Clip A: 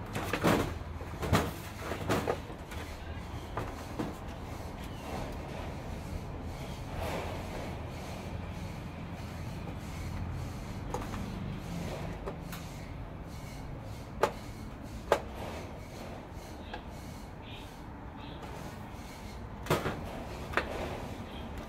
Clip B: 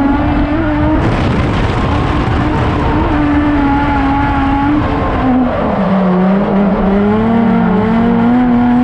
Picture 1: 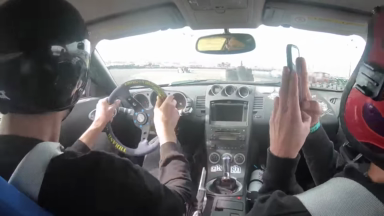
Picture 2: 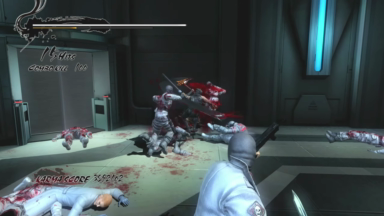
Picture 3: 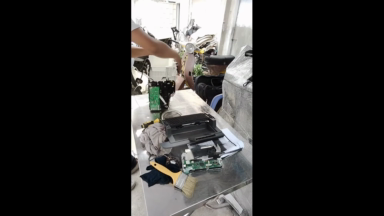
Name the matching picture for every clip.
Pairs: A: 3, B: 1